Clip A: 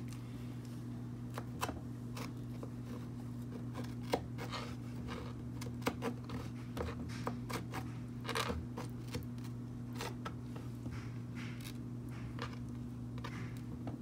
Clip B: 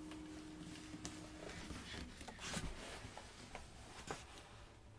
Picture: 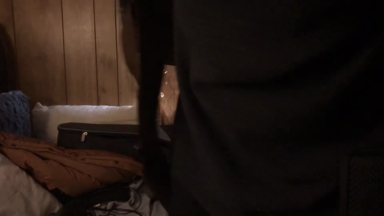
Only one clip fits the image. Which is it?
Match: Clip B